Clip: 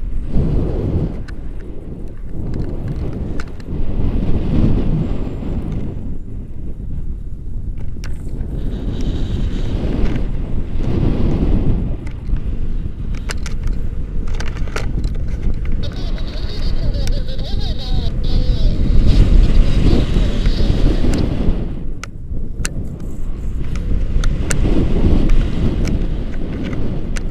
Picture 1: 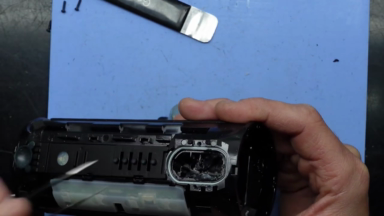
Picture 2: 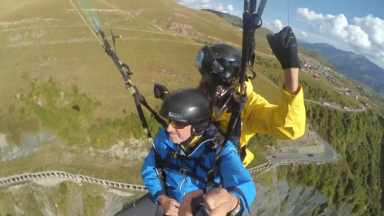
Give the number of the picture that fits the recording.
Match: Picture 2